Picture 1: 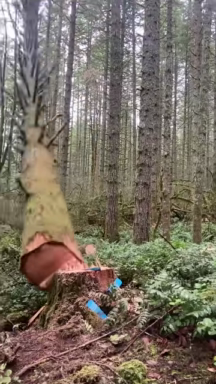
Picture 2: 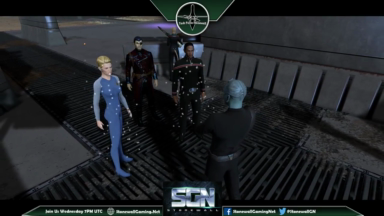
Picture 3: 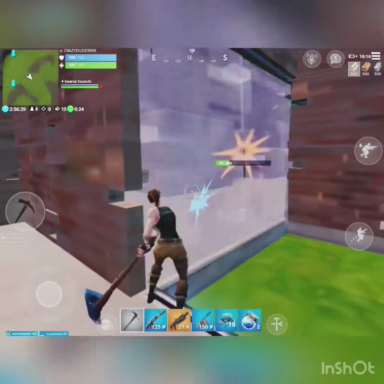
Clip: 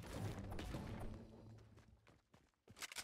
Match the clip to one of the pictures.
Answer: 3